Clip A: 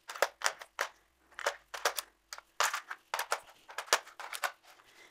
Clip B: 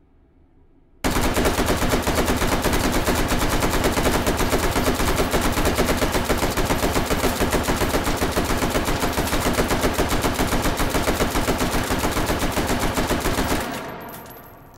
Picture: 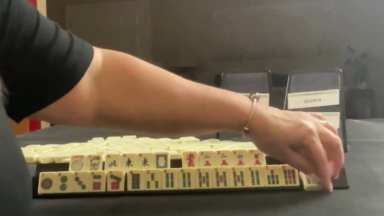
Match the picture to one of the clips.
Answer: A